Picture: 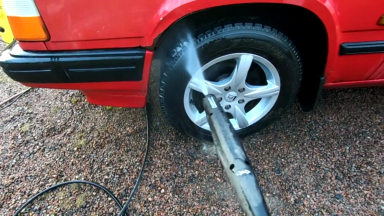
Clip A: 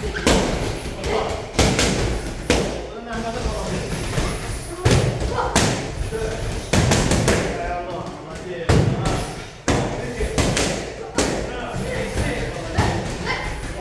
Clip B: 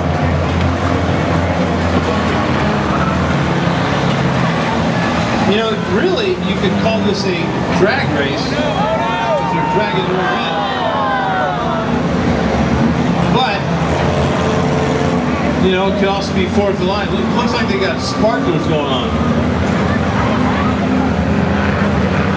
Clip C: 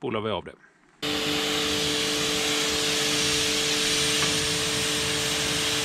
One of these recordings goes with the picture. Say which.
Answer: C